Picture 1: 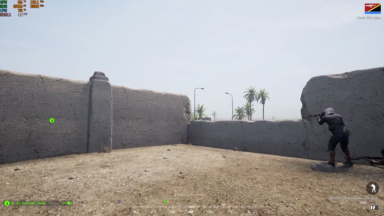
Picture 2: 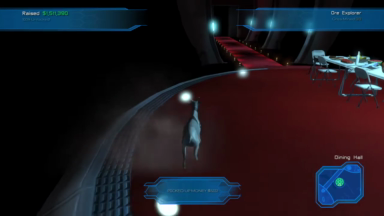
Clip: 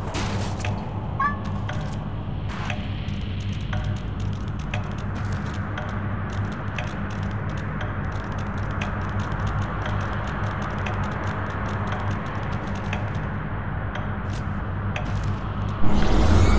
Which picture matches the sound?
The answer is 2